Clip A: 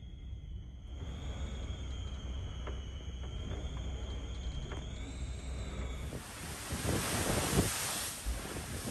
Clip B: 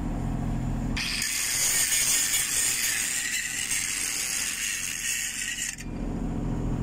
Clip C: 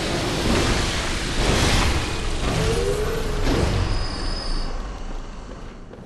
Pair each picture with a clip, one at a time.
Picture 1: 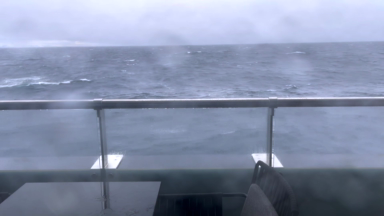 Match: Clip A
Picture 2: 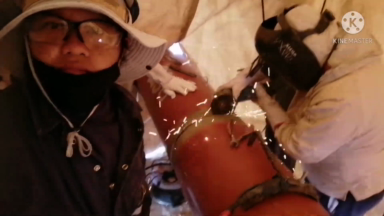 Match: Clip B